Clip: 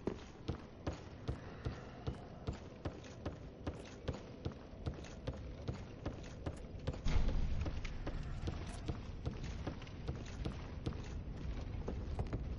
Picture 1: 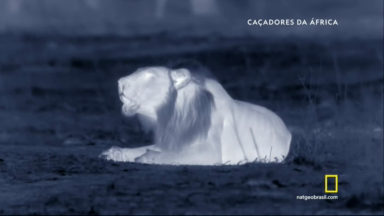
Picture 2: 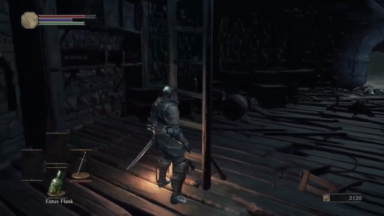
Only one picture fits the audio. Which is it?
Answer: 2